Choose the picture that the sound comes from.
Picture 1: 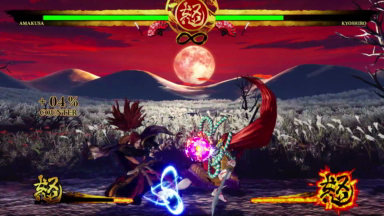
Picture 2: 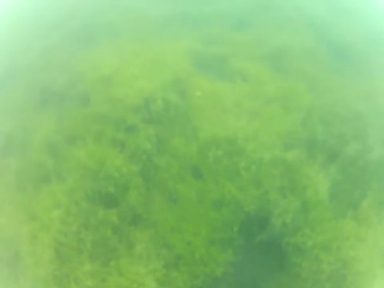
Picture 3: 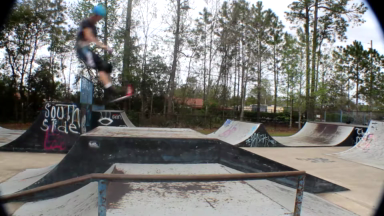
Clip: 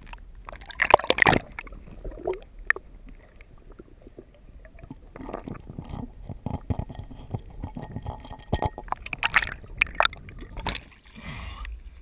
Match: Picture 2